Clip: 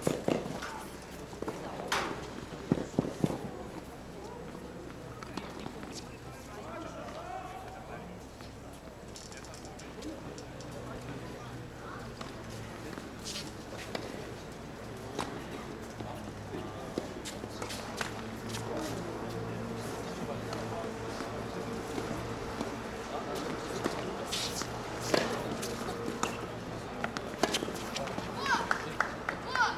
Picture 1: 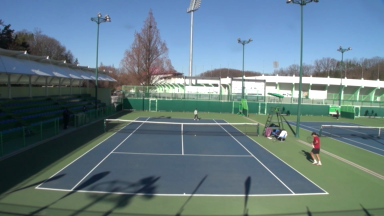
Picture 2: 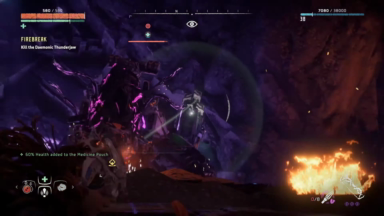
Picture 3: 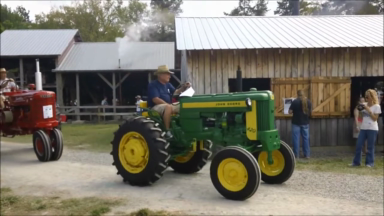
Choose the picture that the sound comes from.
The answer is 1